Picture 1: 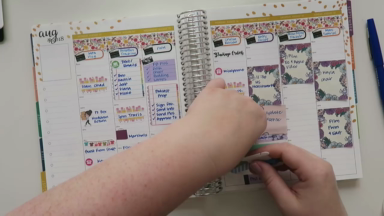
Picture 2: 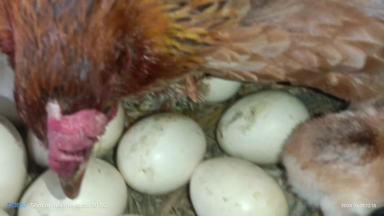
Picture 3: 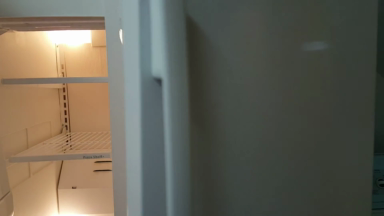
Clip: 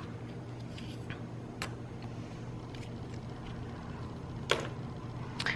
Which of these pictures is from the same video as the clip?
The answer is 1